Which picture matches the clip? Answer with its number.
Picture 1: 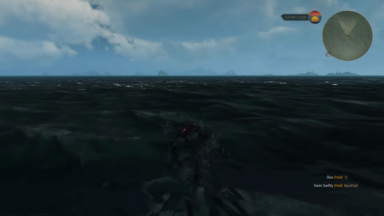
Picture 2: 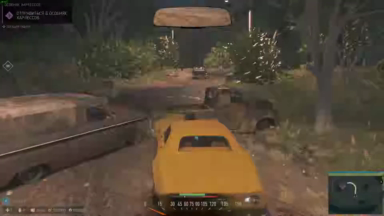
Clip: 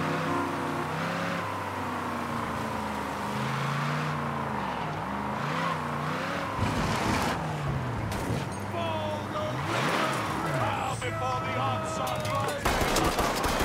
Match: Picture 2